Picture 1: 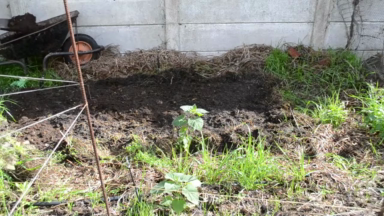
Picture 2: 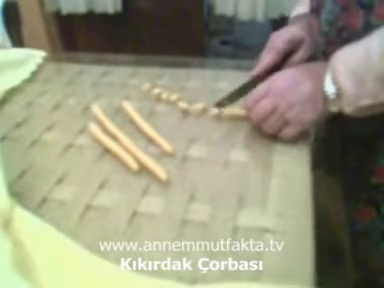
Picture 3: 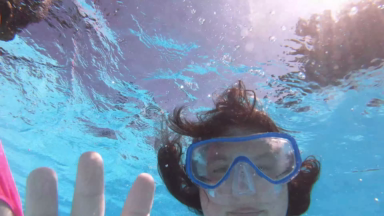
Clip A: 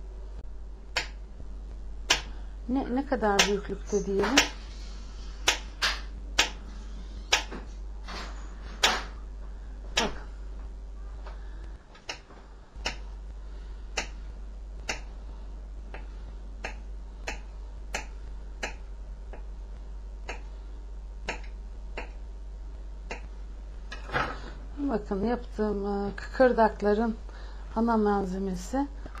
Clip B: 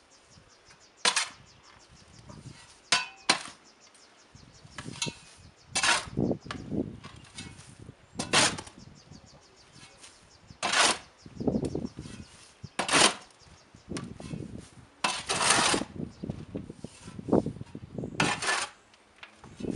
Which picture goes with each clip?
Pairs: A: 2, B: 1